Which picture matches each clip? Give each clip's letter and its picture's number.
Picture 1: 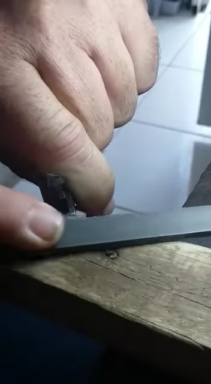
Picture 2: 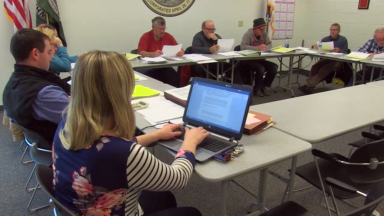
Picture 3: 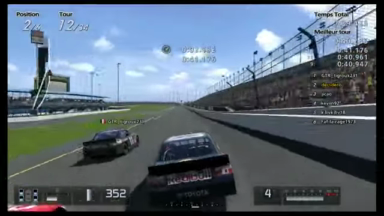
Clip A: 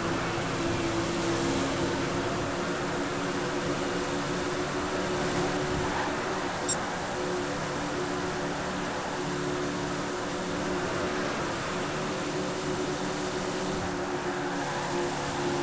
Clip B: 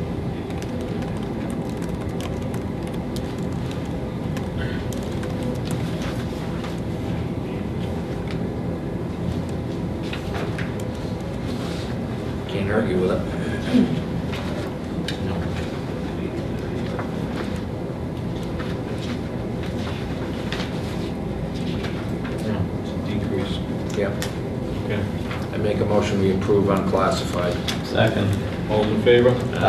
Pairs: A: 3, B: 2